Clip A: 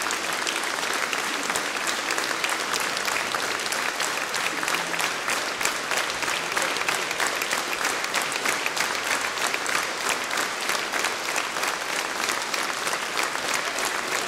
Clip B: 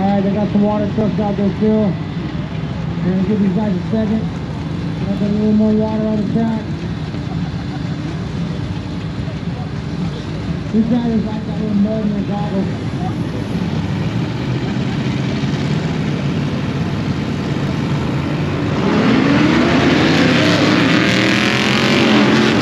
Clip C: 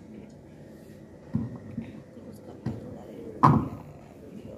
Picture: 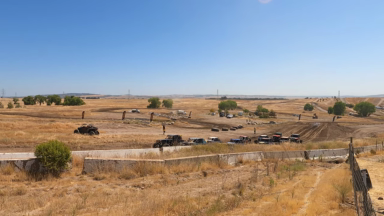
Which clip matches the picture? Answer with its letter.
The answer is B